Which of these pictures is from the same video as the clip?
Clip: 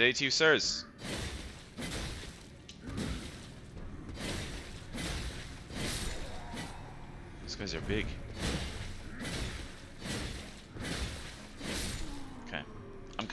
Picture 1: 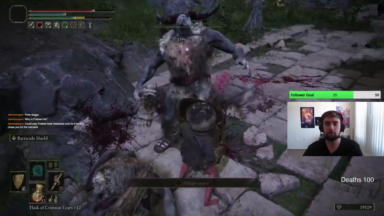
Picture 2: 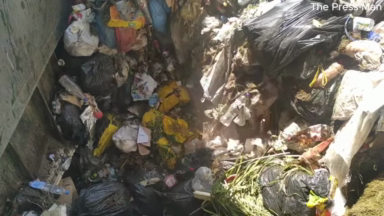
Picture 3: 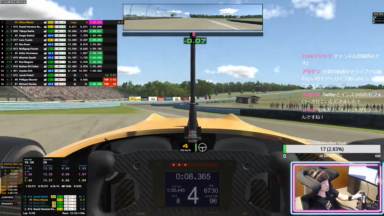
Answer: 1